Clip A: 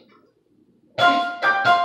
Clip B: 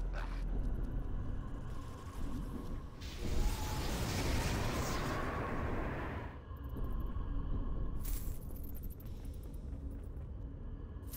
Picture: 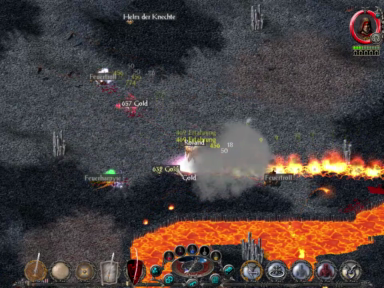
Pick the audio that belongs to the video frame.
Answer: B